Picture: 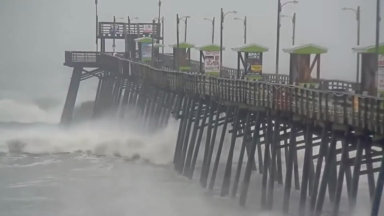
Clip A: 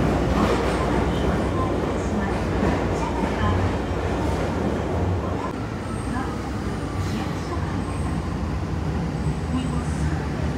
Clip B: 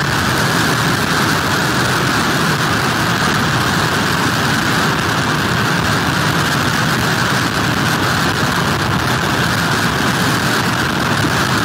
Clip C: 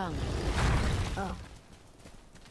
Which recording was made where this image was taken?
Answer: B